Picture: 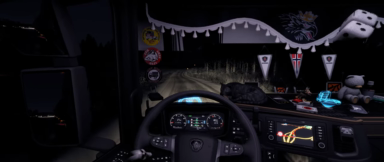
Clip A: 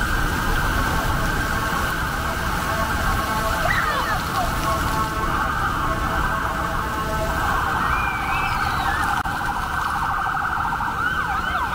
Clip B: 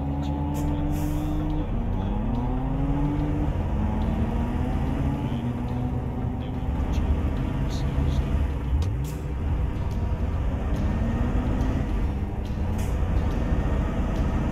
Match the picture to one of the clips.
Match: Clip B